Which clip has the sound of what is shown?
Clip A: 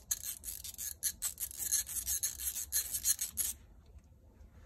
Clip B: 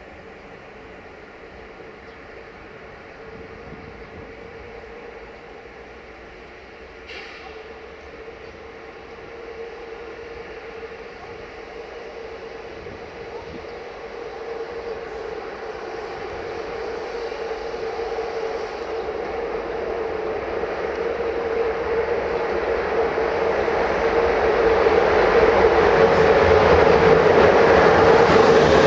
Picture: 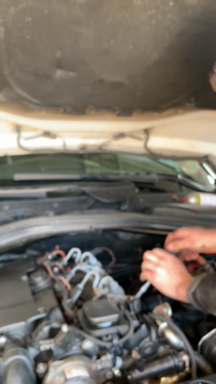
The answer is A